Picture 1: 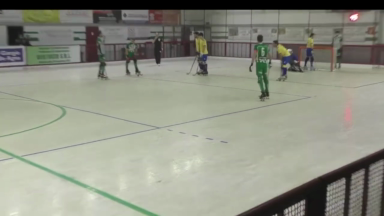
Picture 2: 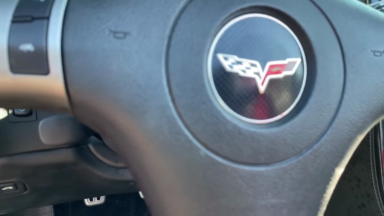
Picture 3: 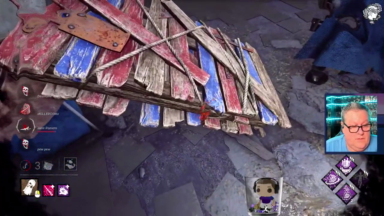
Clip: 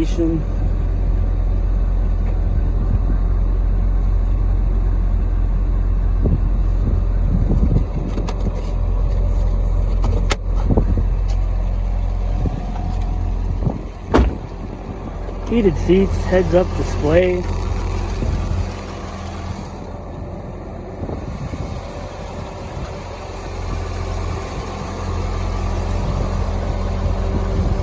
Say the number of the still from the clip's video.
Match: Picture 2